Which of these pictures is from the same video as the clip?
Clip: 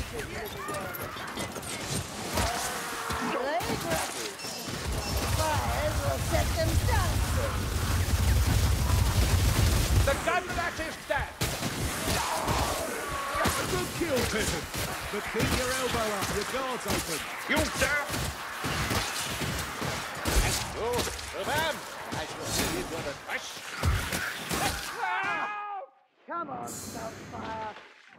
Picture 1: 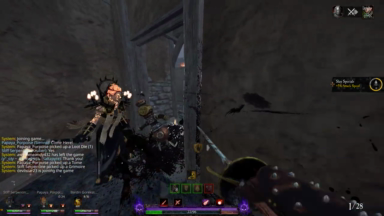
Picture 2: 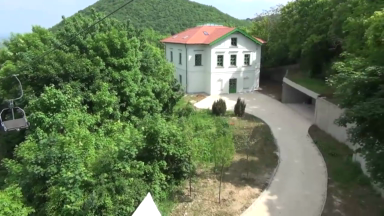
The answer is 1